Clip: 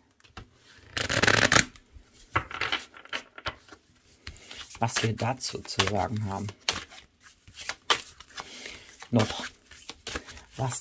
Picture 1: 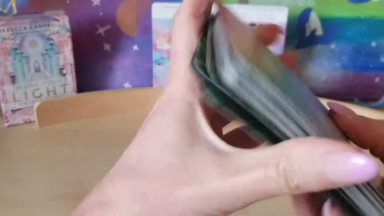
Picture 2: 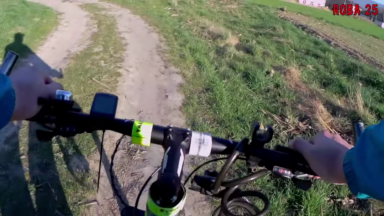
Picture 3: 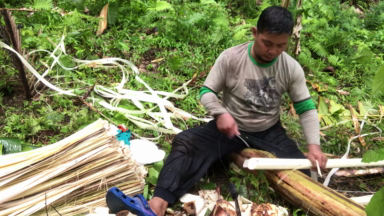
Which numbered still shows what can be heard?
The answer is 1